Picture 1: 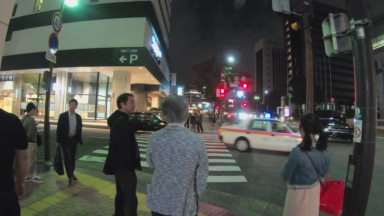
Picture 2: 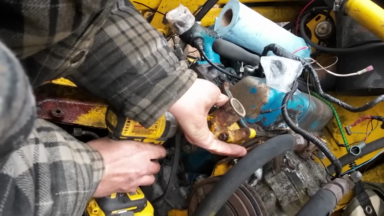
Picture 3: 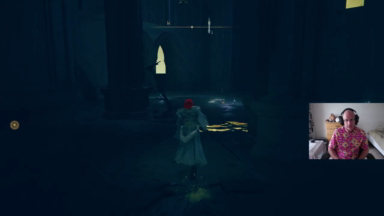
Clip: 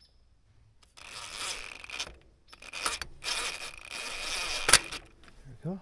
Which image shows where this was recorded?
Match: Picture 2